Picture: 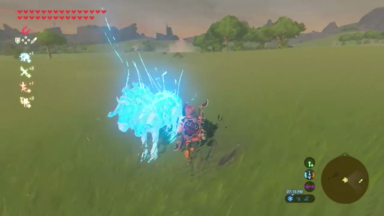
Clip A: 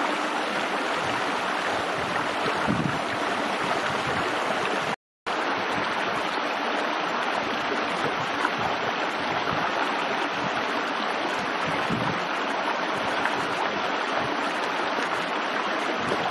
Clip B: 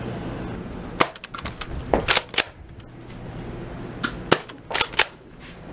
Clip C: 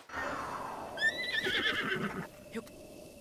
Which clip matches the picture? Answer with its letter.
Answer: C